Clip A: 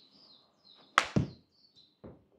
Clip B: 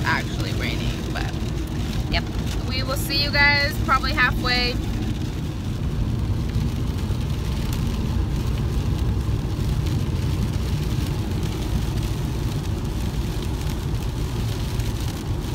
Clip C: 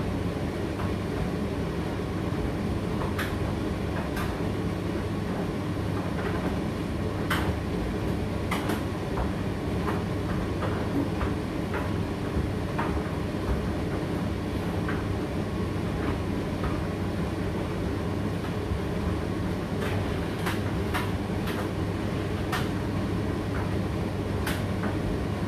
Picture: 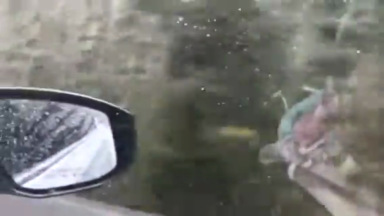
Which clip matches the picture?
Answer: B